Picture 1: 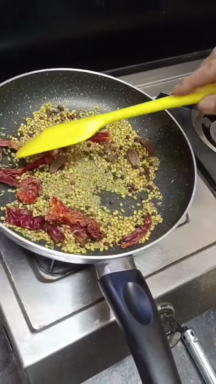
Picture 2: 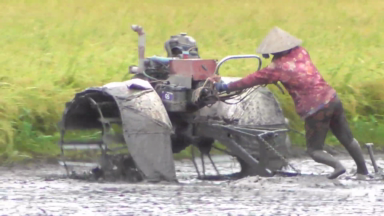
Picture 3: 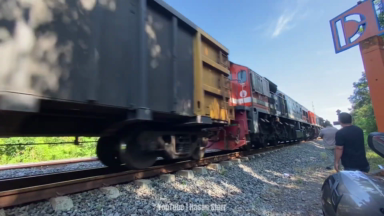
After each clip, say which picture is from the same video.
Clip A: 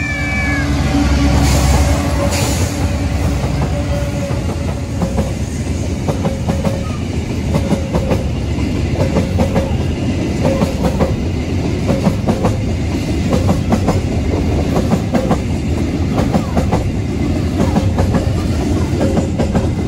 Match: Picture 3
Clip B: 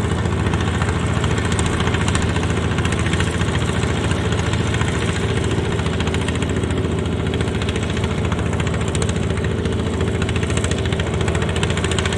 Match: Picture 2